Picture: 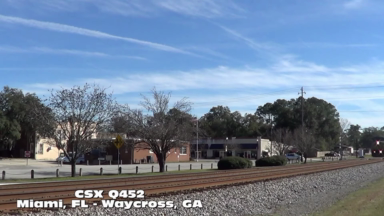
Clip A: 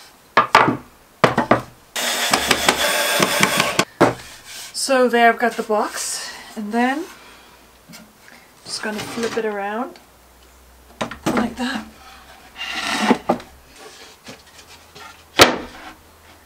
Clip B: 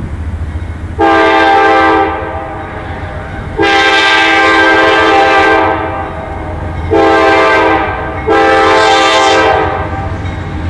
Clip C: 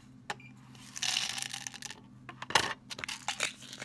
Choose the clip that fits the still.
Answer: B